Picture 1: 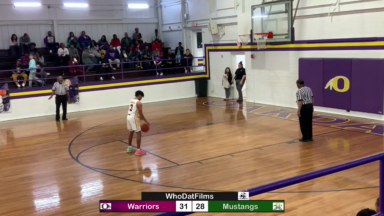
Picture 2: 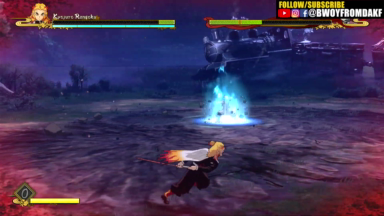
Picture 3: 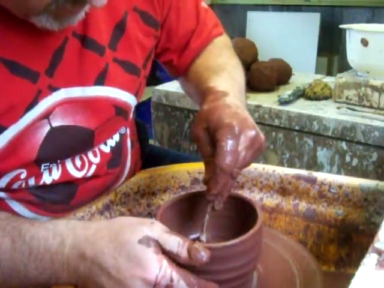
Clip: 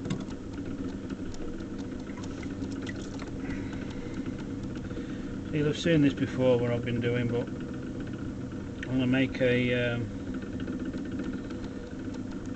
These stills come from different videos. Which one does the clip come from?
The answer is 3